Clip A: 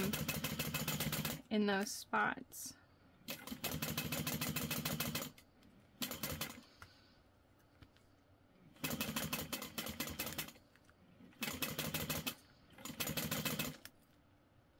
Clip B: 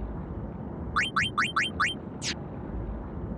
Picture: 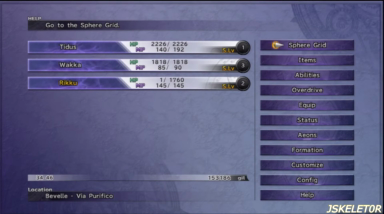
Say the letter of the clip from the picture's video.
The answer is B